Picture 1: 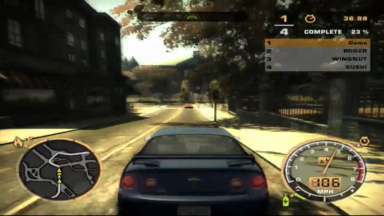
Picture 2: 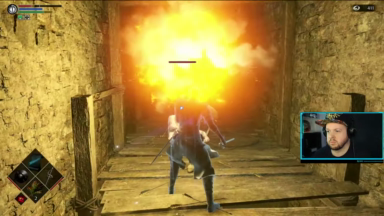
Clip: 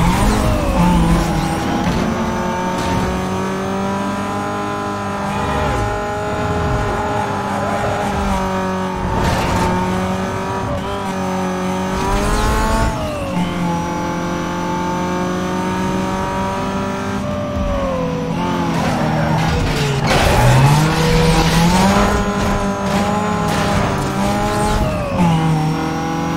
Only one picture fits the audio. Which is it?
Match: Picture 1